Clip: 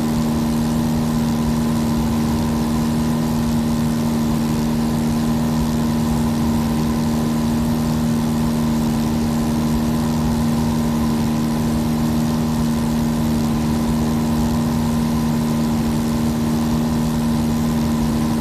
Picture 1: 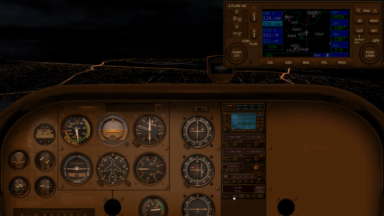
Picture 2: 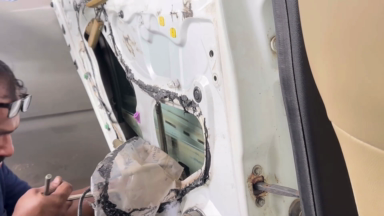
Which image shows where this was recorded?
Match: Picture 1